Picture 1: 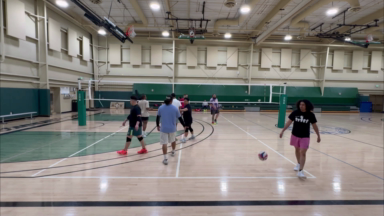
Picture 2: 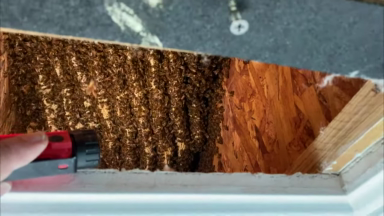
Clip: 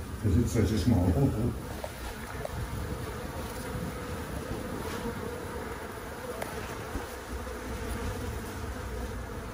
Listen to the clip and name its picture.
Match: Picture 2